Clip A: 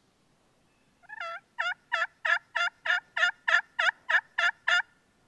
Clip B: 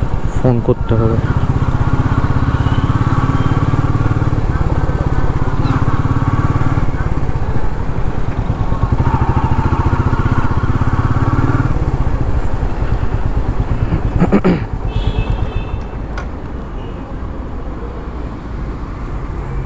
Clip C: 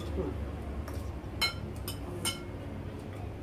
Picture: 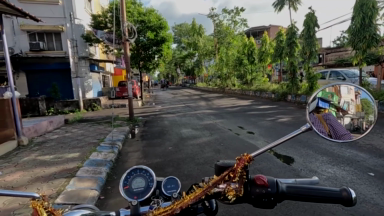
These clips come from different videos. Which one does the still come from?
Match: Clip B